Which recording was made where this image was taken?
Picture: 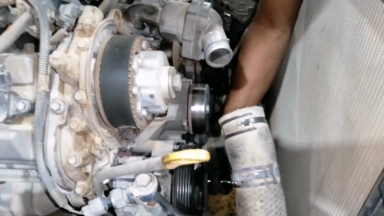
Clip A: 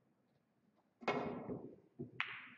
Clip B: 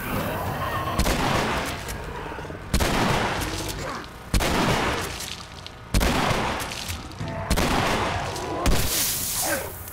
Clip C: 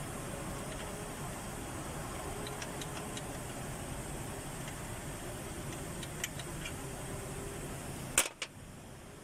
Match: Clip C